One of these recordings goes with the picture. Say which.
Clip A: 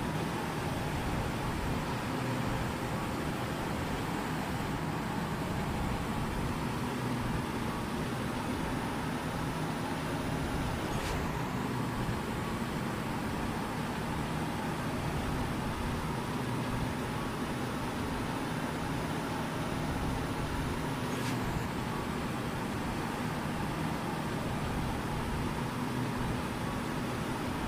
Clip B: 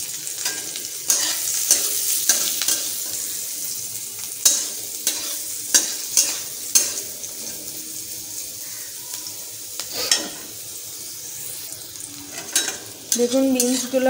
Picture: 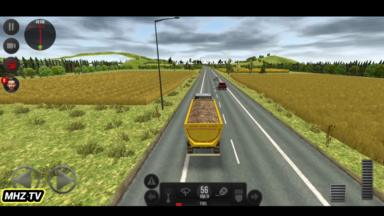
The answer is A